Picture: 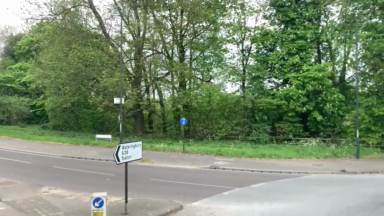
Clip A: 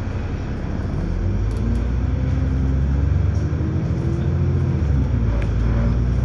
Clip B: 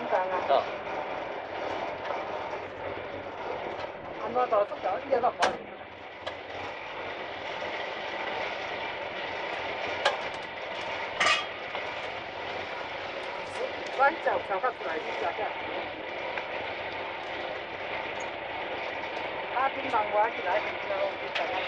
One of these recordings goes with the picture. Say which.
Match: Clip A